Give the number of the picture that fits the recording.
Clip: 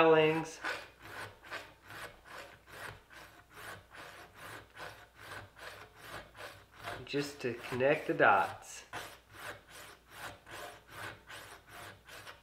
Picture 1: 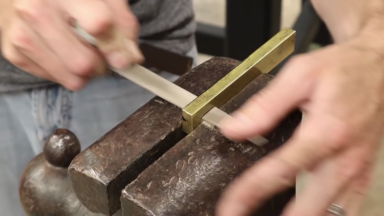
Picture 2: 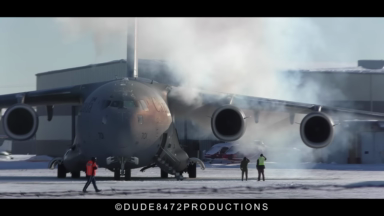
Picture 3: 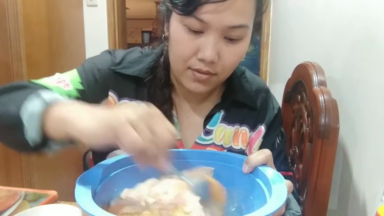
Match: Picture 1